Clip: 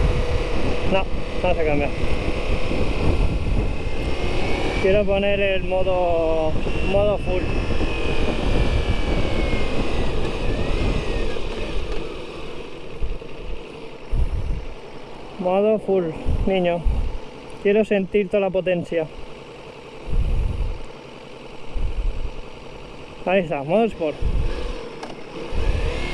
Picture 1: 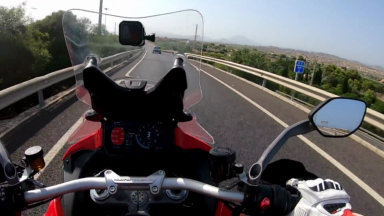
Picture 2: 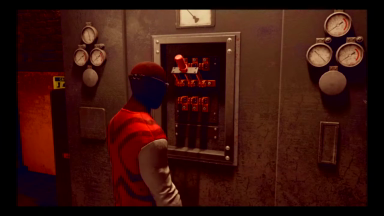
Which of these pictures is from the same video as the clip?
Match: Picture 1